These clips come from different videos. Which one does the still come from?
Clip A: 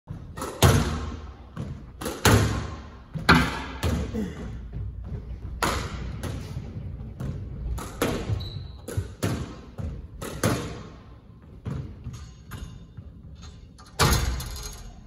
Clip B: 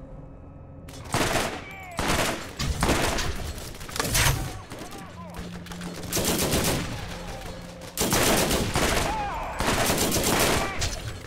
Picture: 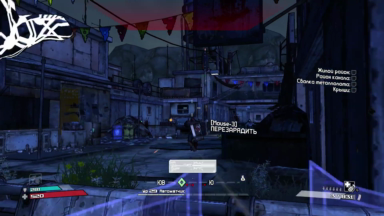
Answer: B